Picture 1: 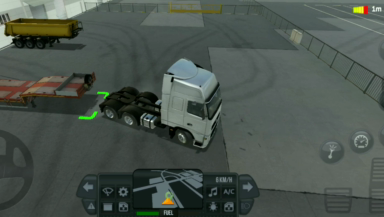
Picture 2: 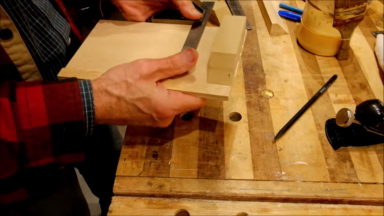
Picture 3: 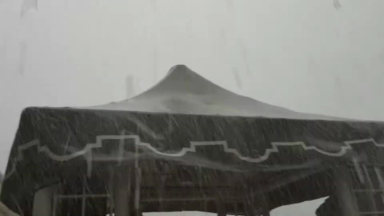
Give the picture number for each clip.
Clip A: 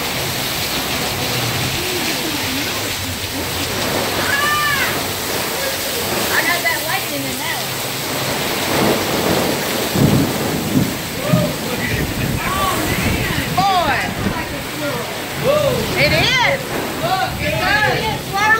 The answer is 3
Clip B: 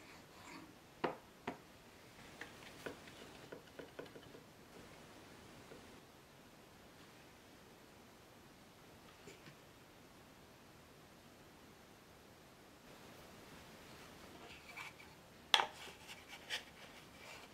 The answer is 2